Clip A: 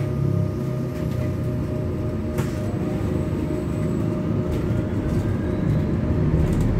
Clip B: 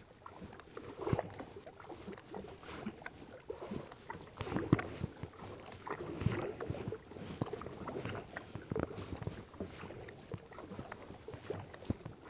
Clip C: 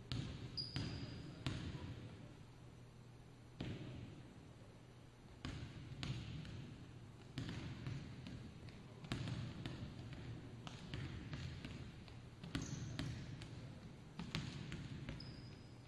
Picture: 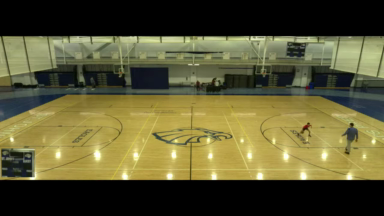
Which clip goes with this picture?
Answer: C